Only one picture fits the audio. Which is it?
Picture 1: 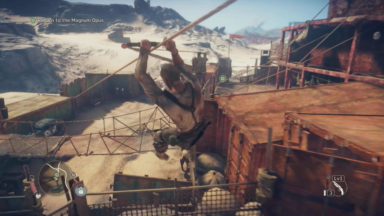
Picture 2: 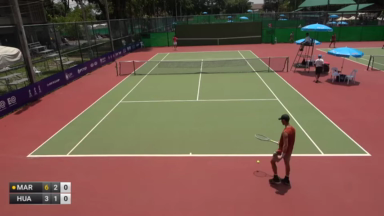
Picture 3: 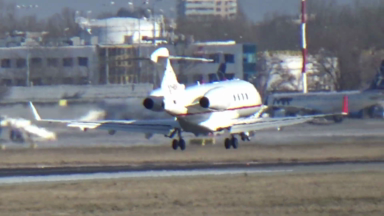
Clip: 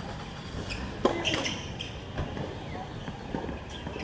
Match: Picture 2